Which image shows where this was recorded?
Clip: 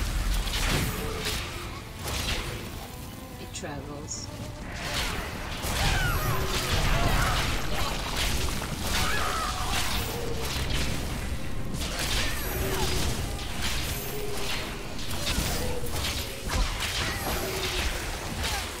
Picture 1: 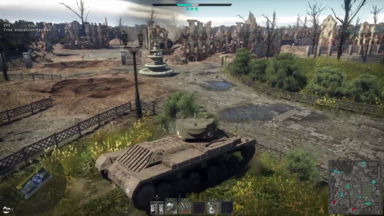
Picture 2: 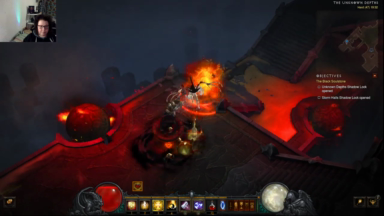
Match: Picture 2